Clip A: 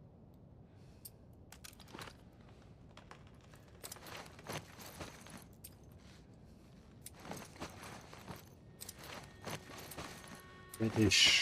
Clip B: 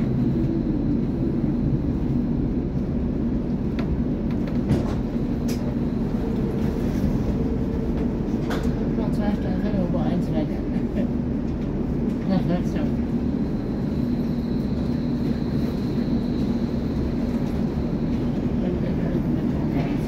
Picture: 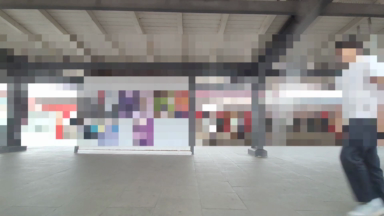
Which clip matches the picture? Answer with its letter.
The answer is B